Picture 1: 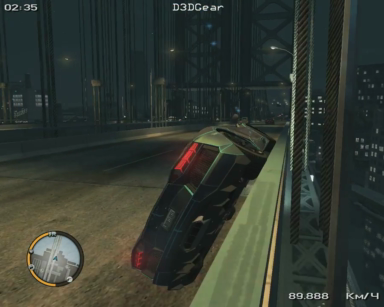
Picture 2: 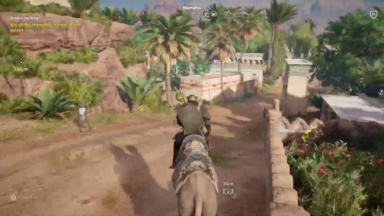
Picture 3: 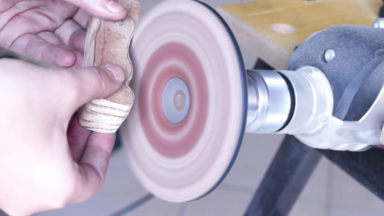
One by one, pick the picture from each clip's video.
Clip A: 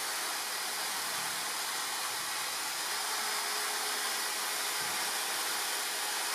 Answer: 3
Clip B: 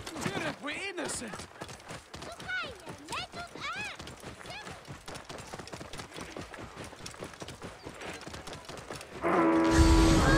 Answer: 2